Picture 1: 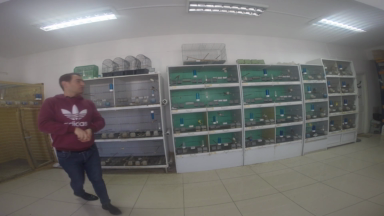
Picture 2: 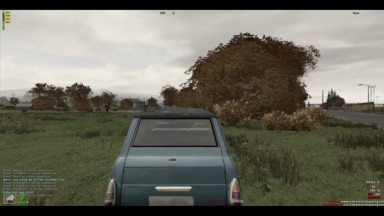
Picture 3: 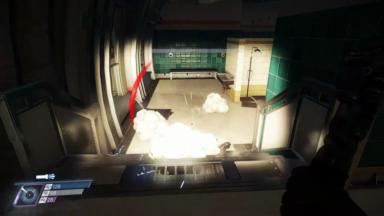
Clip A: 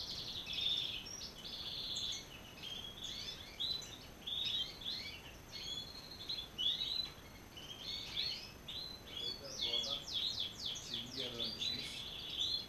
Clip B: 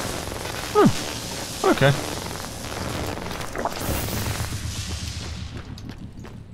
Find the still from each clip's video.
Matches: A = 1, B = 3